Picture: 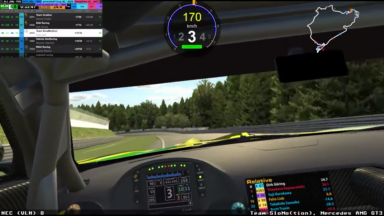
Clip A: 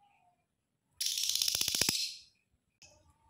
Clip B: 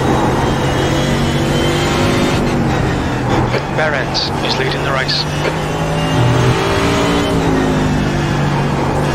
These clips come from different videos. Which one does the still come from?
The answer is B